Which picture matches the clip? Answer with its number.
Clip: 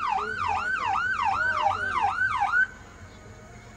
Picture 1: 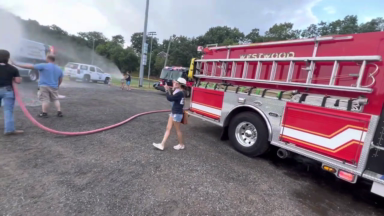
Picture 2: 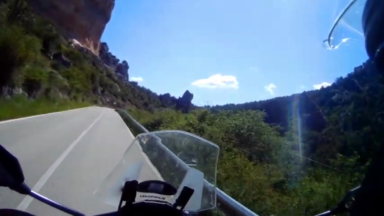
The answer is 1